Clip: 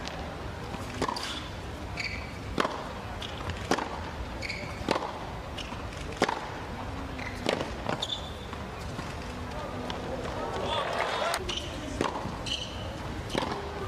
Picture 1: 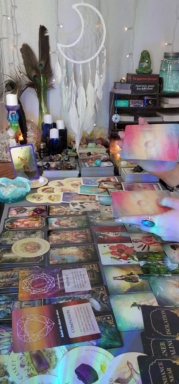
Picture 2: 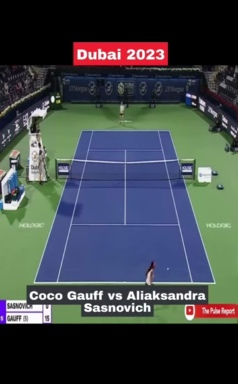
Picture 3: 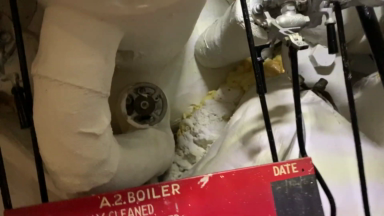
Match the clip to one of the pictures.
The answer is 2